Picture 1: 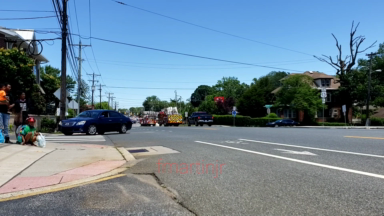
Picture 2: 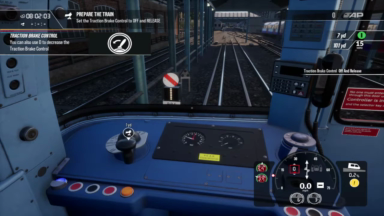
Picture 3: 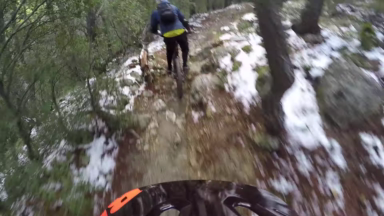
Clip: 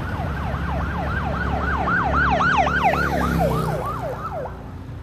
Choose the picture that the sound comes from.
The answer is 1